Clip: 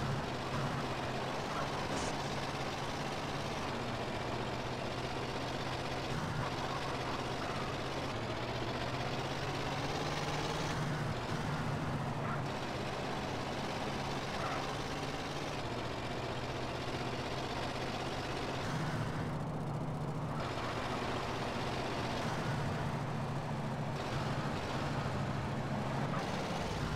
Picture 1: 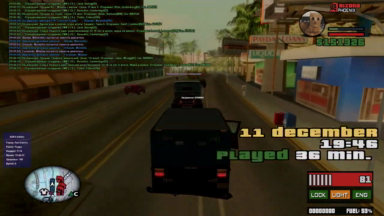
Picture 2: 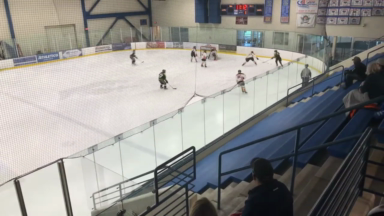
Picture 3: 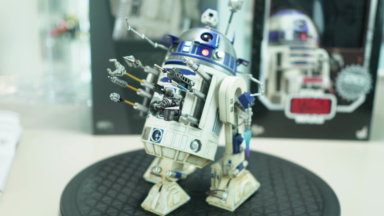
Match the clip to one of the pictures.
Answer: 1